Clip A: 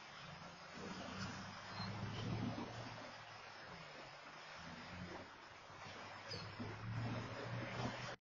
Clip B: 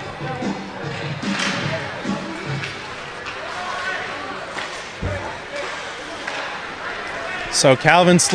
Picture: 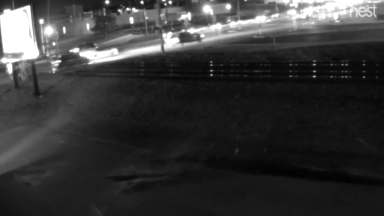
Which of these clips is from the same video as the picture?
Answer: A